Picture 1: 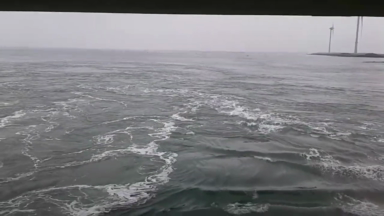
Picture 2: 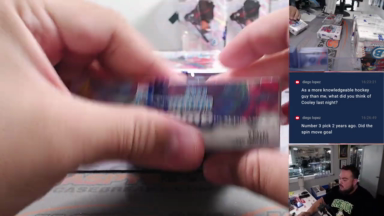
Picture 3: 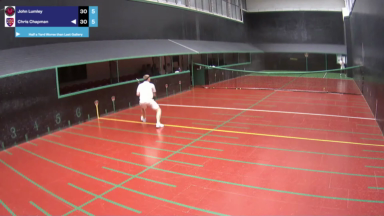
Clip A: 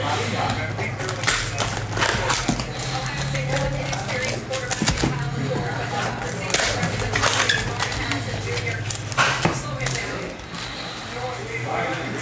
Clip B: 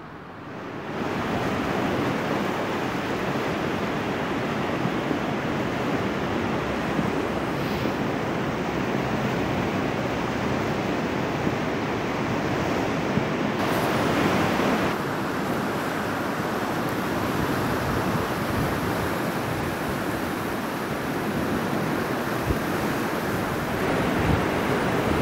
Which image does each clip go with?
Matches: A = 2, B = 1